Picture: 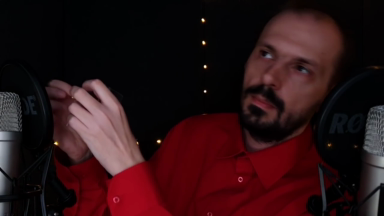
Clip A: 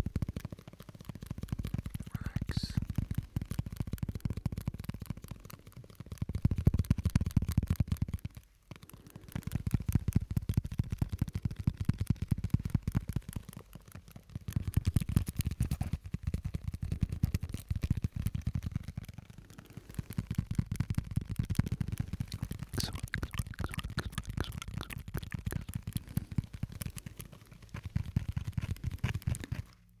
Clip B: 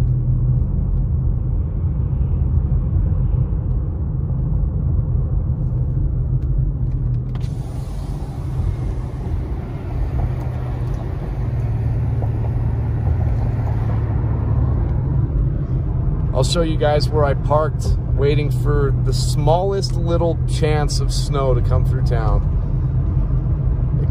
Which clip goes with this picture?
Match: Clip A